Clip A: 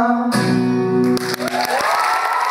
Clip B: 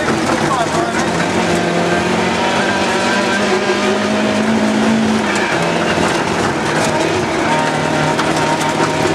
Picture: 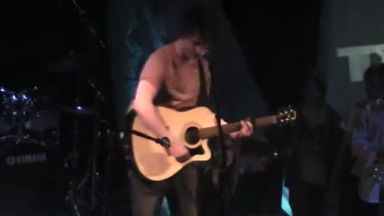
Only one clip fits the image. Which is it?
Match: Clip A